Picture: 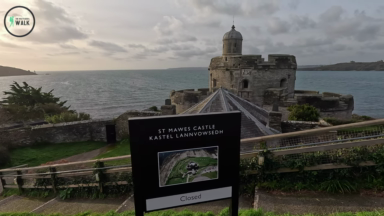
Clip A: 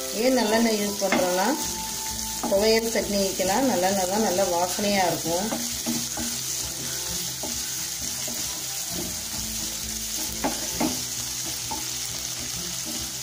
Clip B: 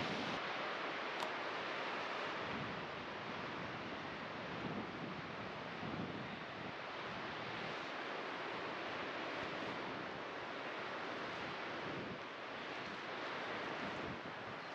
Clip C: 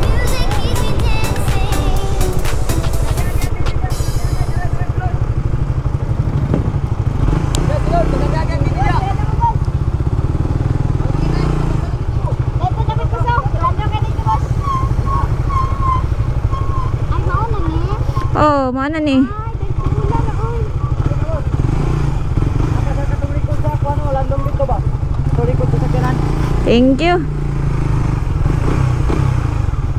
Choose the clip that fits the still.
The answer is B